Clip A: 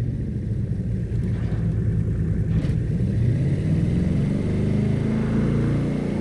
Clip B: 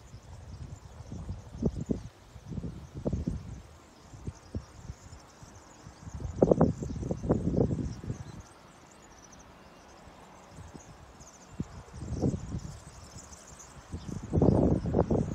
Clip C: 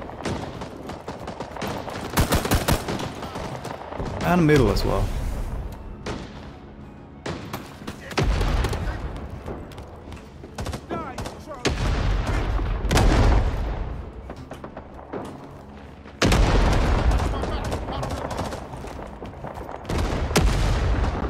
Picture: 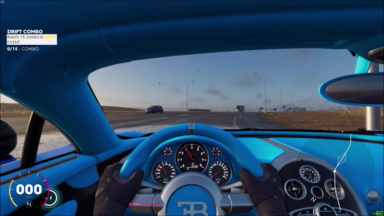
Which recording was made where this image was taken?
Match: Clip A